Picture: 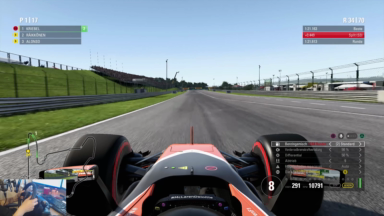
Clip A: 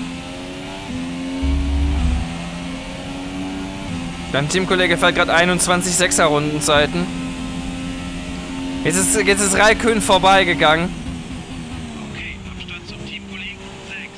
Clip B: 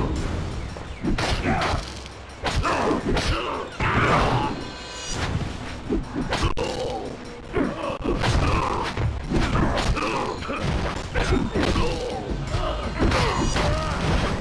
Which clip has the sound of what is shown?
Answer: A